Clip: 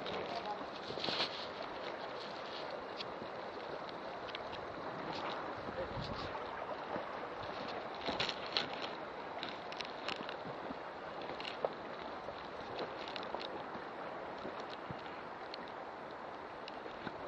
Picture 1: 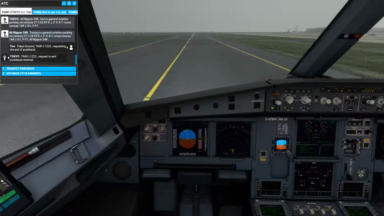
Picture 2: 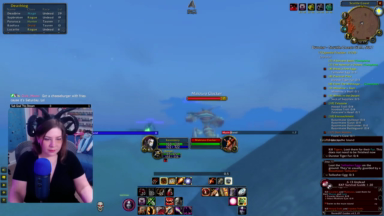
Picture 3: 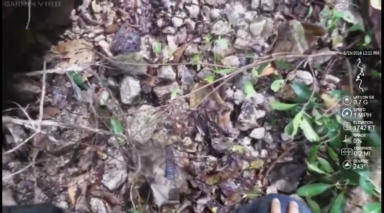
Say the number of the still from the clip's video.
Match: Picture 3